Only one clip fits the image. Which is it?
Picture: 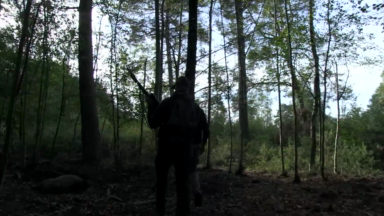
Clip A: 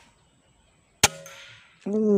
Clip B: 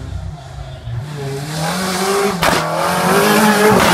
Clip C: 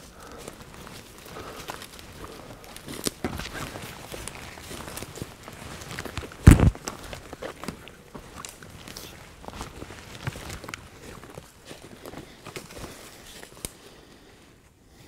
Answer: C